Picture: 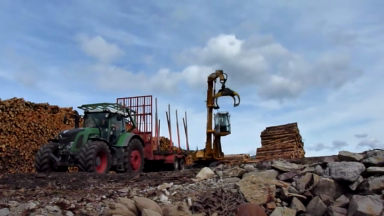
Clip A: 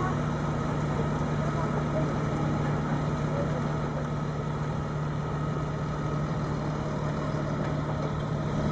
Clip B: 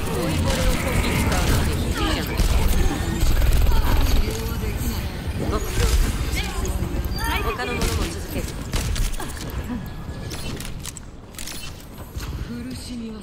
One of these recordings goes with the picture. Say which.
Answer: A